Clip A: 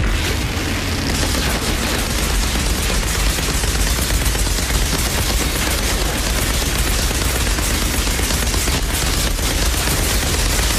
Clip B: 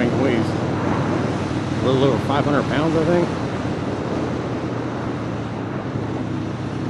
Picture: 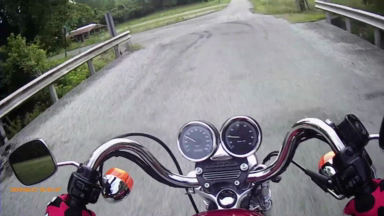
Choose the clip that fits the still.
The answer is B